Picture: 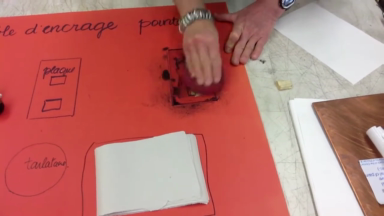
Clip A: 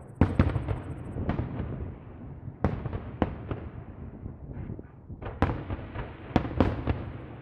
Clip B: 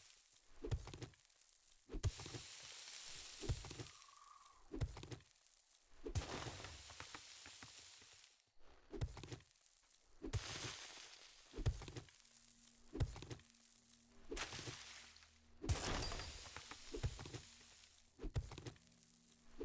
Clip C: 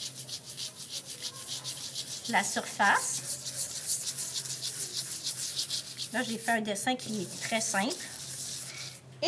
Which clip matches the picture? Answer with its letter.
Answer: C